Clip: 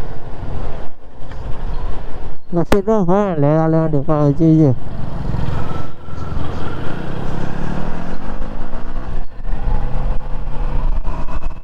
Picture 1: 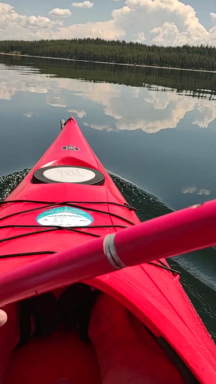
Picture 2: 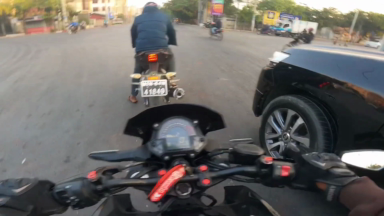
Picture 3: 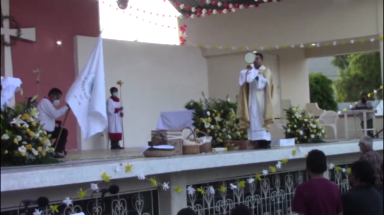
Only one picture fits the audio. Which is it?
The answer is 2